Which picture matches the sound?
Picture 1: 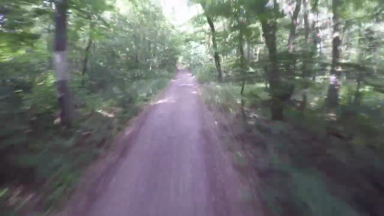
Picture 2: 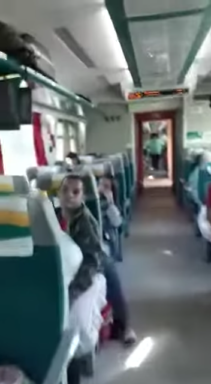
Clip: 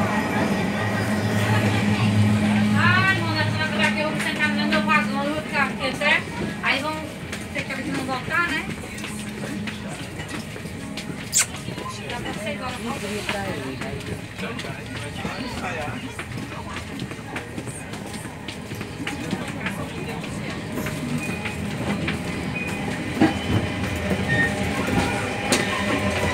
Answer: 2